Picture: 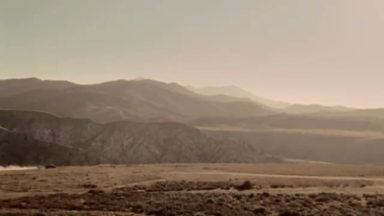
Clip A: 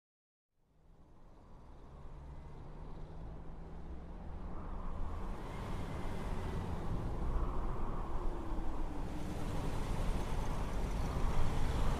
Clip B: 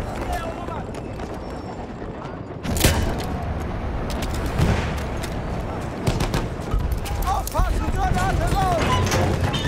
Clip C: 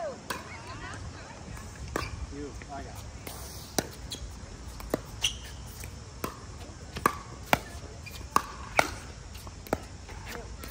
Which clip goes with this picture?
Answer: A